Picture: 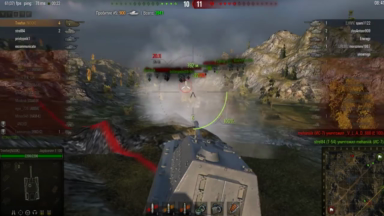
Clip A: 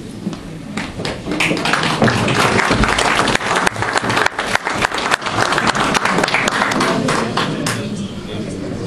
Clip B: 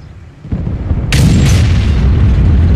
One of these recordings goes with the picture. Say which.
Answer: B